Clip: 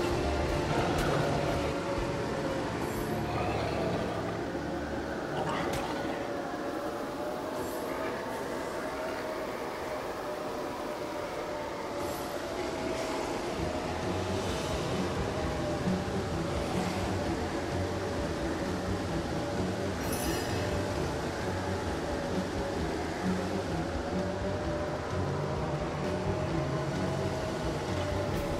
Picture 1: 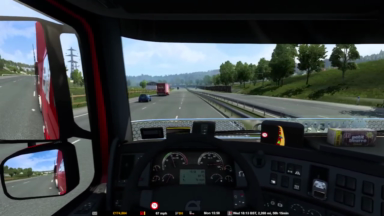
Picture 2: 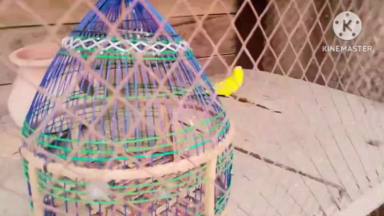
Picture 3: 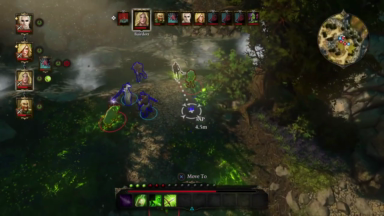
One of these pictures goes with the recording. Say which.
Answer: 3